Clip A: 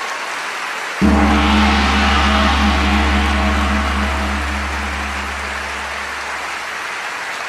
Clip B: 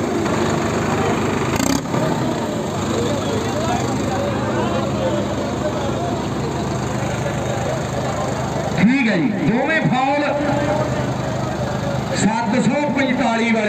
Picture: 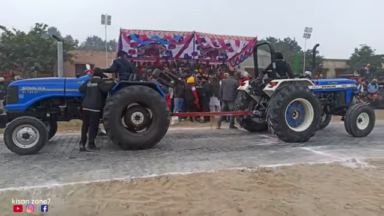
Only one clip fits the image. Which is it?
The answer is B